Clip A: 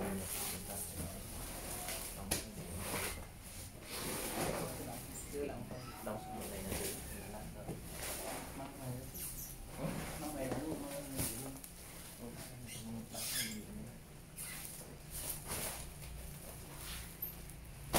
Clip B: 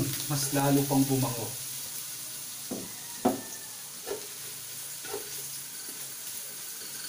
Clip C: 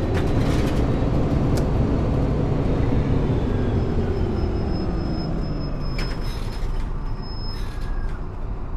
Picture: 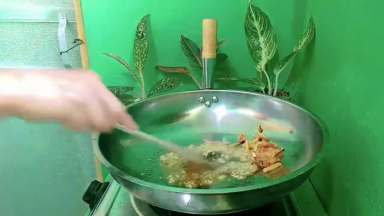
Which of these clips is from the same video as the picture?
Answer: B